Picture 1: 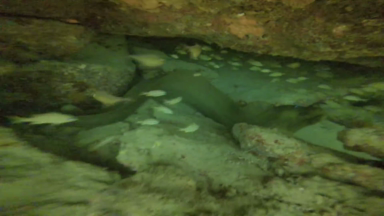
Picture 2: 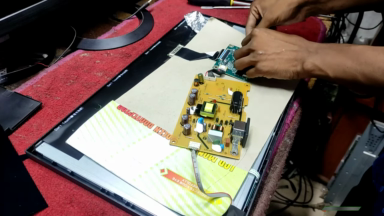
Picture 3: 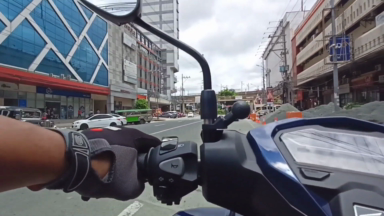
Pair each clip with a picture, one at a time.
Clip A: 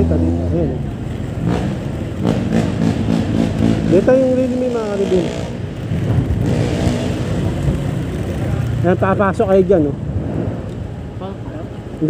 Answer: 3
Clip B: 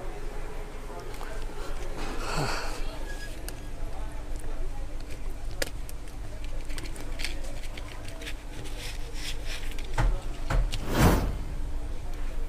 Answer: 2